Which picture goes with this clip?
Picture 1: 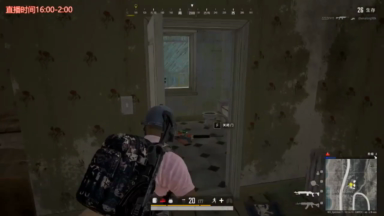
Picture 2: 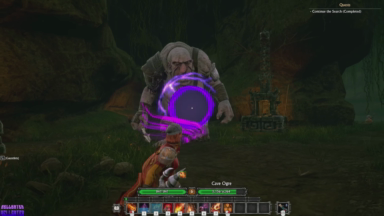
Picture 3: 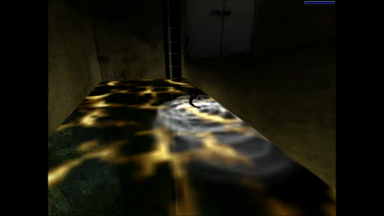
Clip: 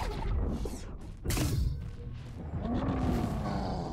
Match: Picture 2